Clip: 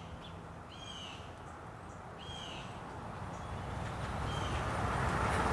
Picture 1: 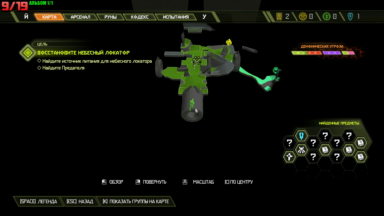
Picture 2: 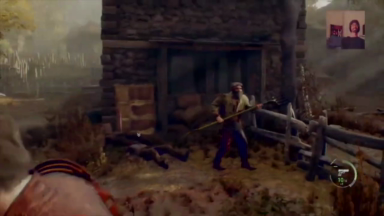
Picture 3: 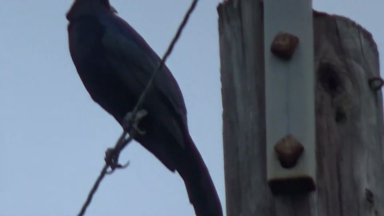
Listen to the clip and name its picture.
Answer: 3